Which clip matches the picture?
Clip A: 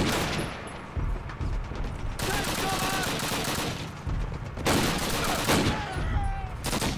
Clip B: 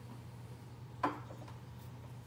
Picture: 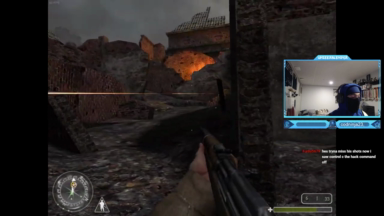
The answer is A